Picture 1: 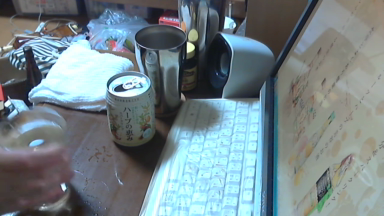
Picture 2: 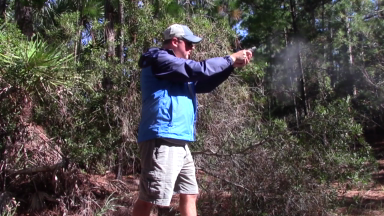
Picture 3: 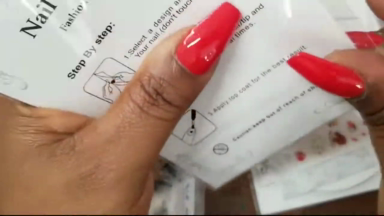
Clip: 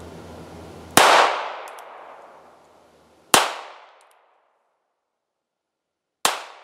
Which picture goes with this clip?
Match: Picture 2